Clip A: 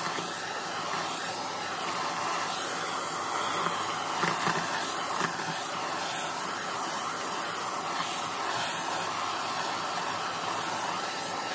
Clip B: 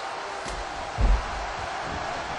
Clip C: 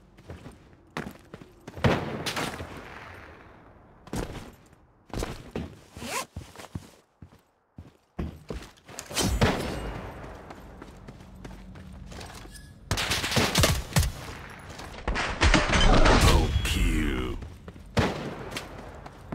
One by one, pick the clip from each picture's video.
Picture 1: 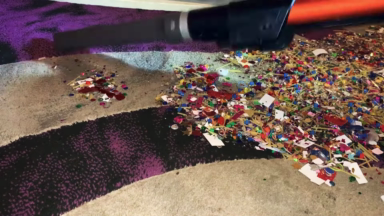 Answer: A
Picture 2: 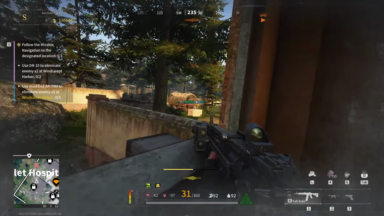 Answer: C